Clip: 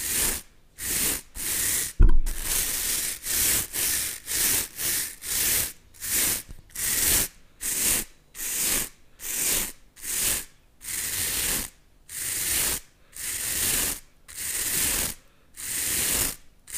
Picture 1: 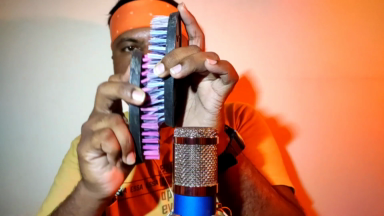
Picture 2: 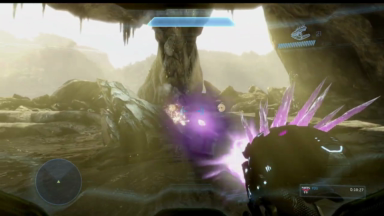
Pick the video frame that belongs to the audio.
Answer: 1